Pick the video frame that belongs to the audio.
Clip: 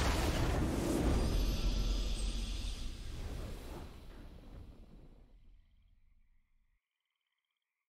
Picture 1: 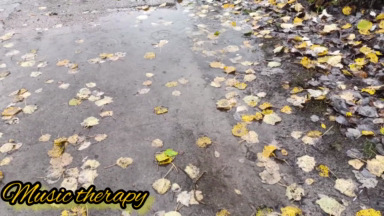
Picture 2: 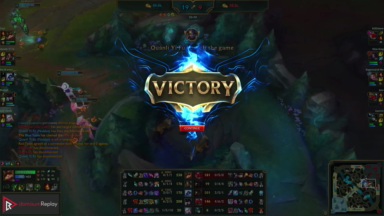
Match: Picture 2